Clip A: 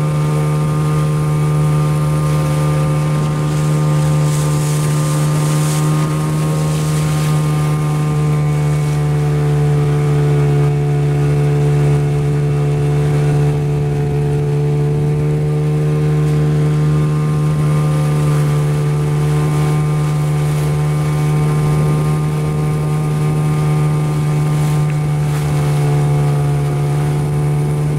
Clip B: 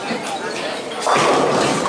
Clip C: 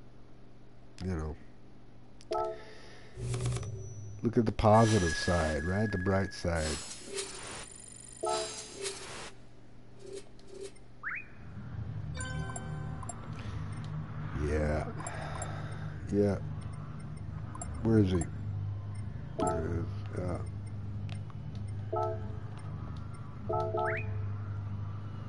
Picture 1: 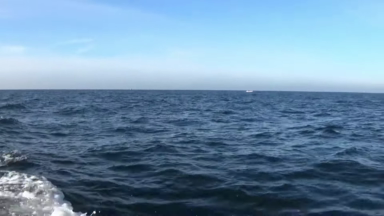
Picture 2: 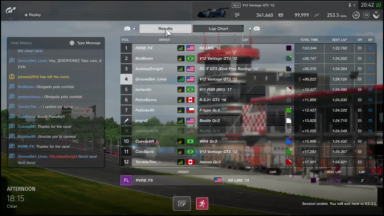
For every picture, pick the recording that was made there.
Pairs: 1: A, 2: C